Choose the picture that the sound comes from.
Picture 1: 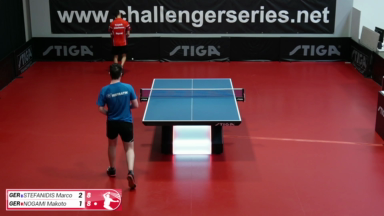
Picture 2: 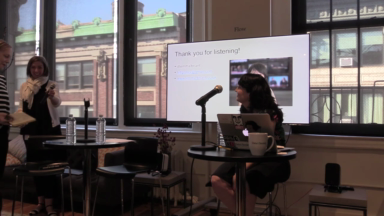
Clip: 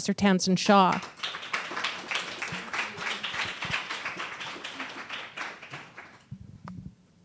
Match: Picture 2